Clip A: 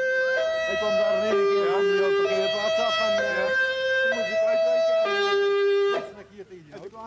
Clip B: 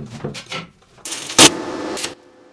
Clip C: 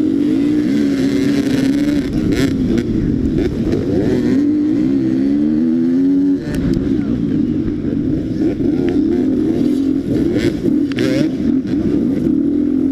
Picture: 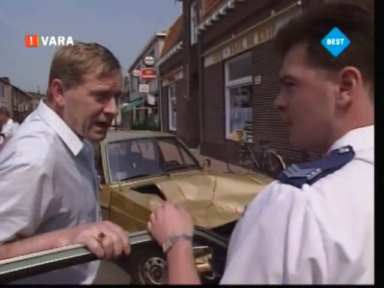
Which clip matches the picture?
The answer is A